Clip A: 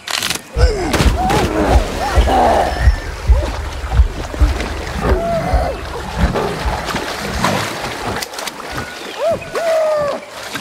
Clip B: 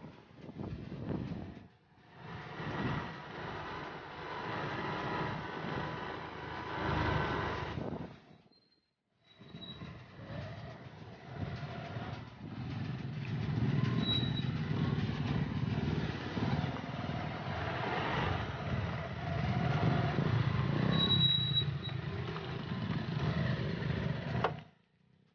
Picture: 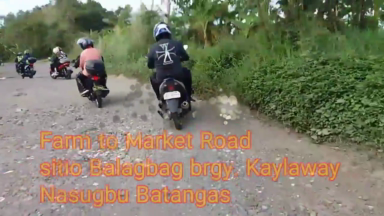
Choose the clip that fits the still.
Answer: B